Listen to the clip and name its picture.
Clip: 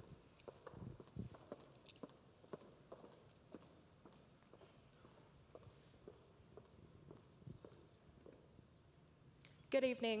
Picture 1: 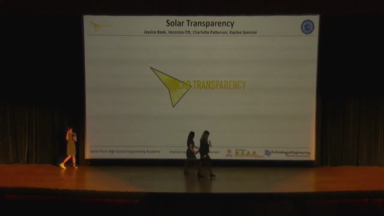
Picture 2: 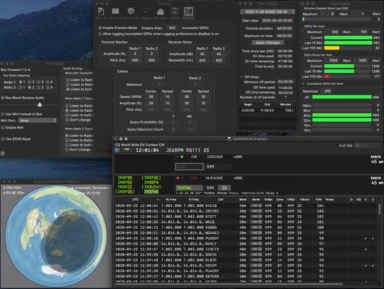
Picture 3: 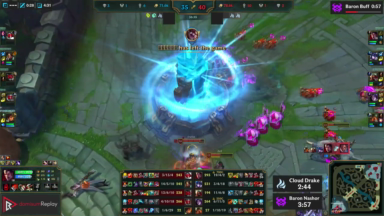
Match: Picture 1